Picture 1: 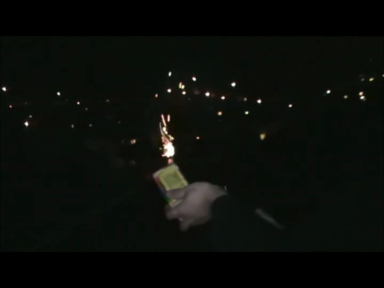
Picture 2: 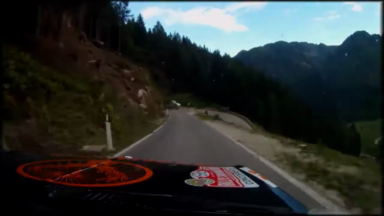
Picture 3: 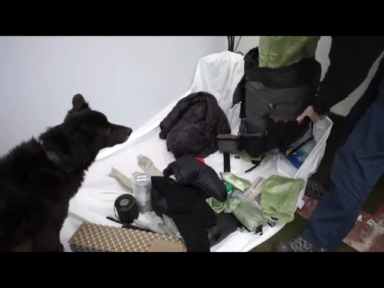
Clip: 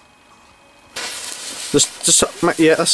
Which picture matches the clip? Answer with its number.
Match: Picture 1